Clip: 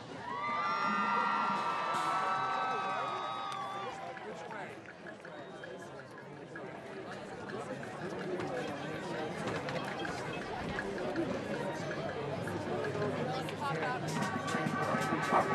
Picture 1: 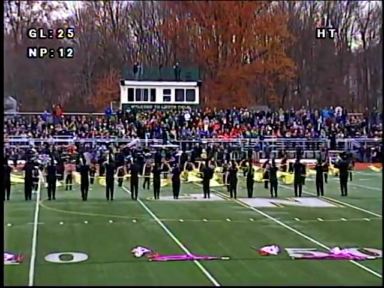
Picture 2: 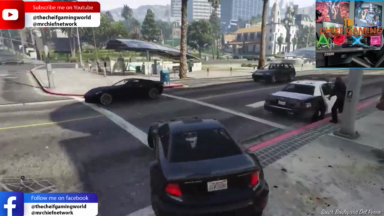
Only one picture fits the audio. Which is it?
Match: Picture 1